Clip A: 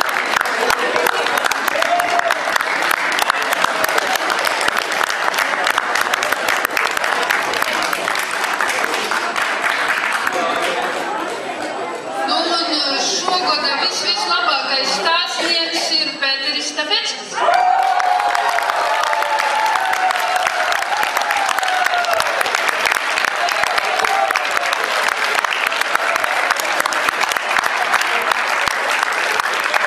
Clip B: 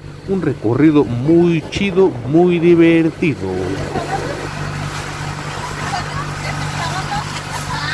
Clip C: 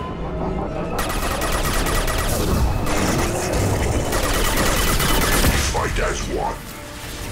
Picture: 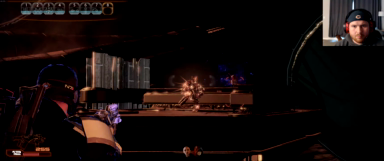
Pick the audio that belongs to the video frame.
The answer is C